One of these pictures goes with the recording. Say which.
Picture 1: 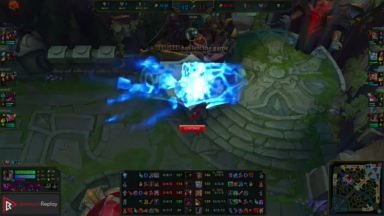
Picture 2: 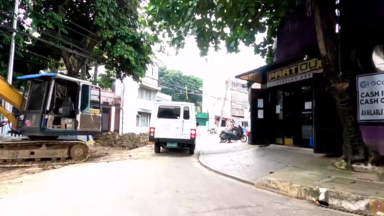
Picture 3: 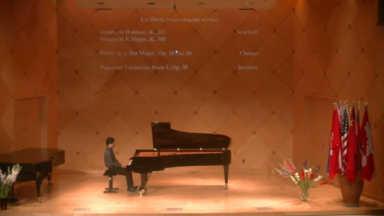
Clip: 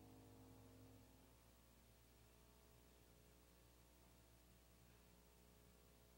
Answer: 3